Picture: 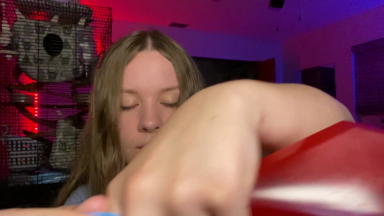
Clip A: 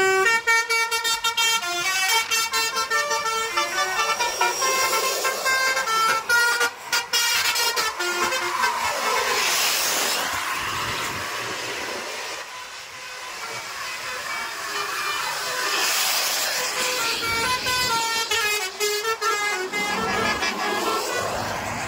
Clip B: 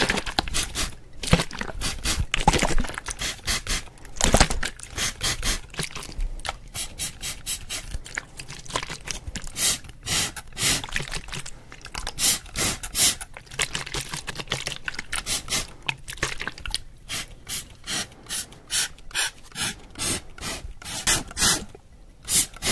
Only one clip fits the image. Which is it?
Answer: B